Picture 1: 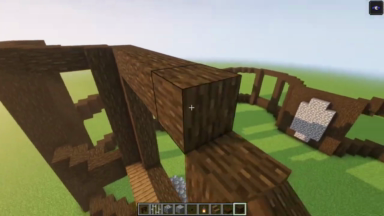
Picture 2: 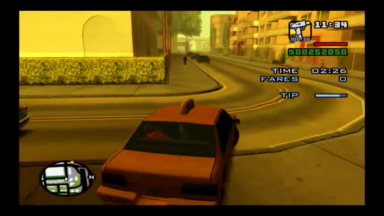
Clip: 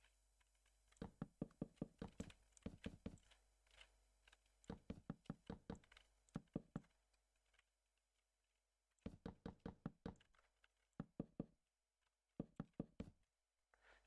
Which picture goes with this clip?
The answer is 1